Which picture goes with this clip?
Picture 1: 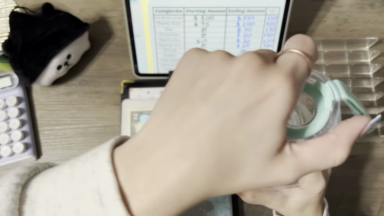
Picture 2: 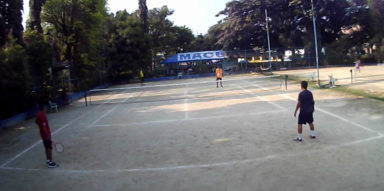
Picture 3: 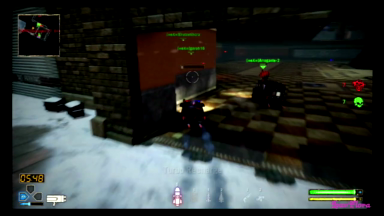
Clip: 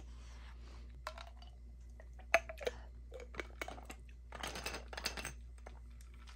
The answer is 1